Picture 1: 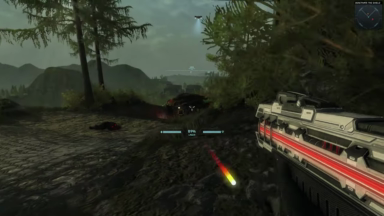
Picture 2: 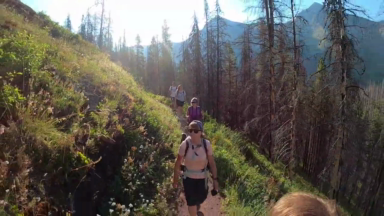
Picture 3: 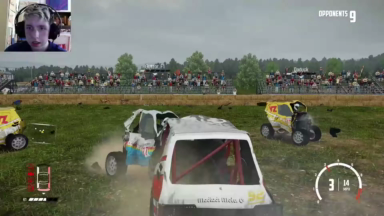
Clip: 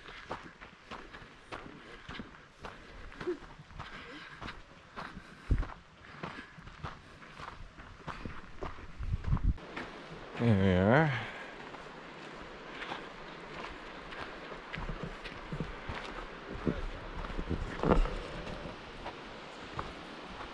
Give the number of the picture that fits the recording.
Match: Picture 2